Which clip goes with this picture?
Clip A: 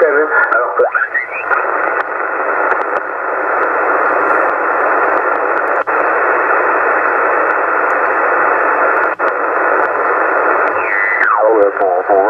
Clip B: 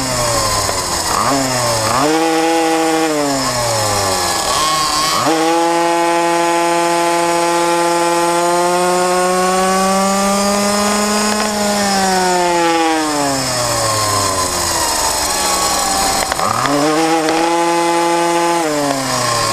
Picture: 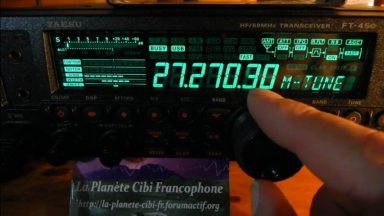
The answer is A